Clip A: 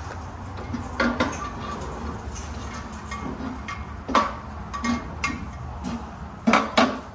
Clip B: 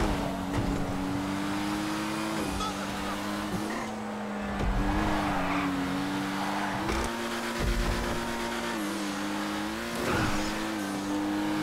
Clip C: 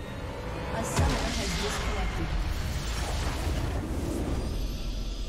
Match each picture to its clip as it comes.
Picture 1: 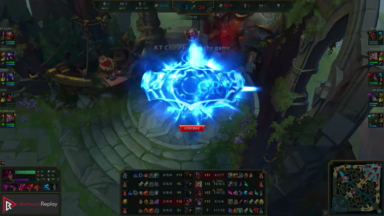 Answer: C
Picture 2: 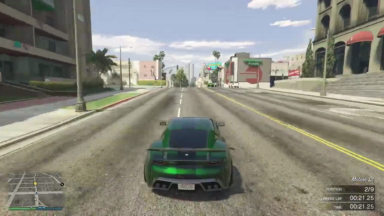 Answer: B